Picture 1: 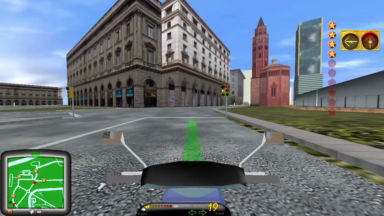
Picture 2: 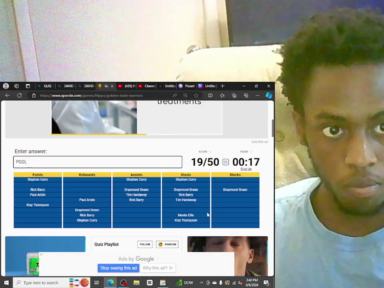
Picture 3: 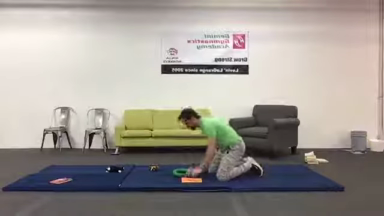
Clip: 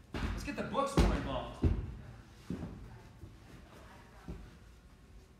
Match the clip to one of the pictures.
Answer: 3